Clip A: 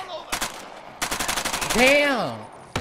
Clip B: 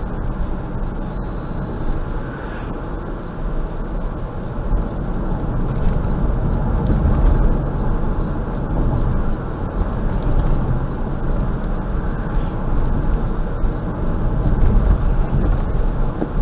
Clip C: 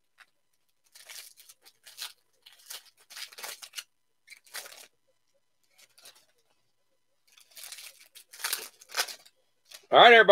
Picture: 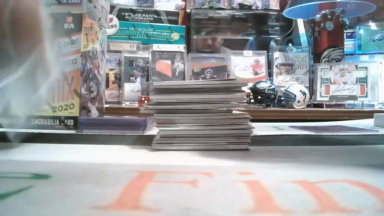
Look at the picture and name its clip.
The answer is C